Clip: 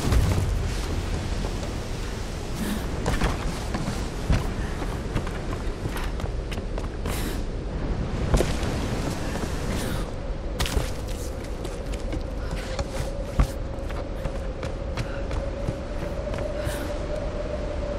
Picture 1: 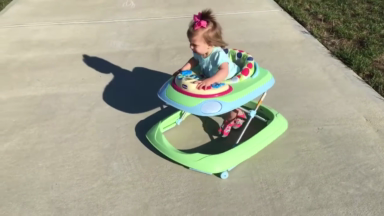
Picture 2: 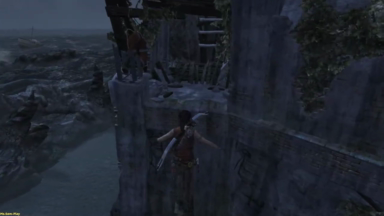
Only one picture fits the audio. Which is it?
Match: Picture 2